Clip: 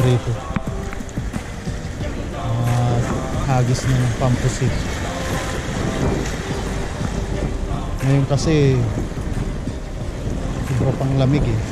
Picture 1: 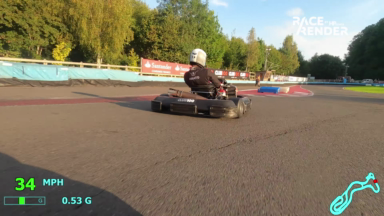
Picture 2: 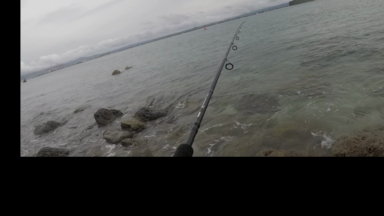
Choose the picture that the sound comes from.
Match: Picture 2